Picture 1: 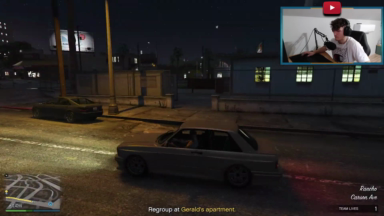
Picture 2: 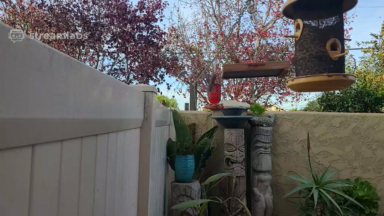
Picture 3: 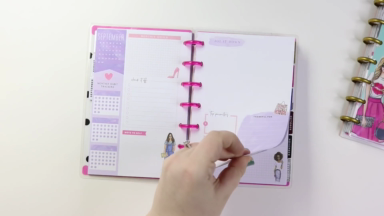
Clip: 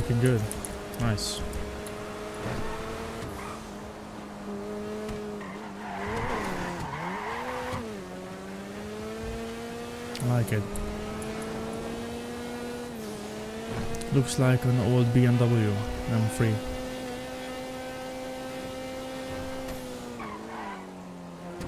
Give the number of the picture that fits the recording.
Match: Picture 1